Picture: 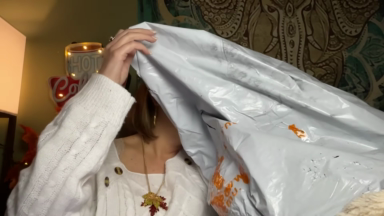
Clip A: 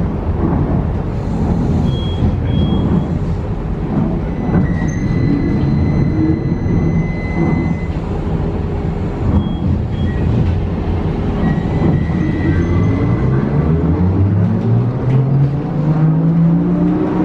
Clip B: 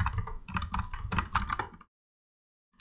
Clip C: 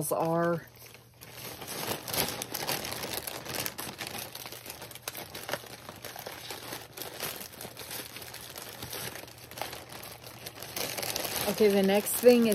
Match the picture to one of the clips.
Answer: C